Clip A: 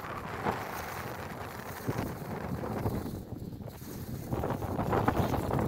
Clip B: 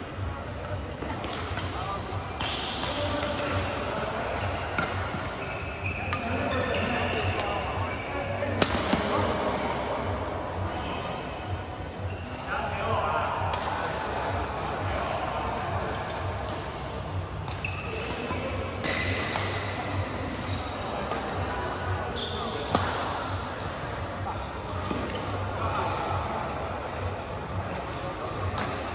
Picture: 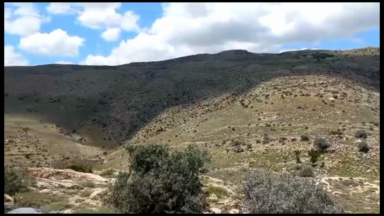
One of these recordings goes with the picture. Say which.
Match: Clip A